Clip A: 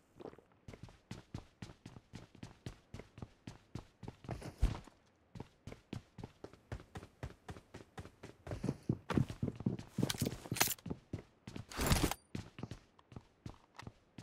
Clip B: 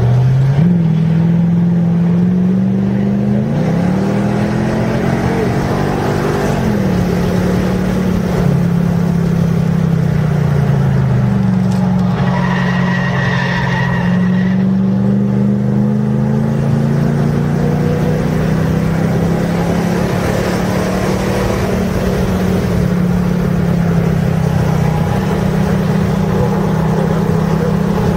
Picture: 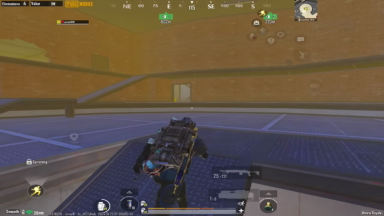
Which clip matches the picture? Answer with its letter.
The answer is A